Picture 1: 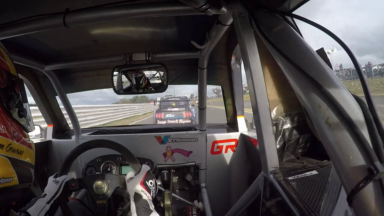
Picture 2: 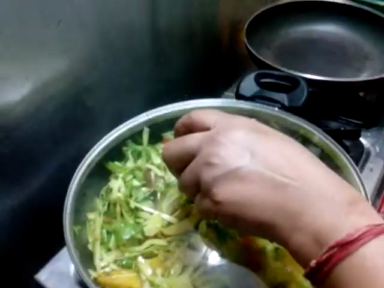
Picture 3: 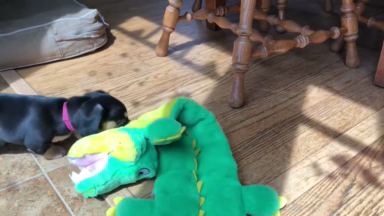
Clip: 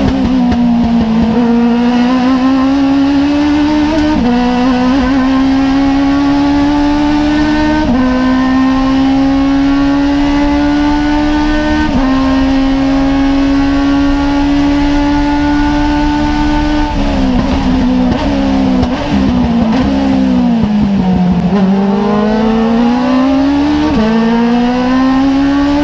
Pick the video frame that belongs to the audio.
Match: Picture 1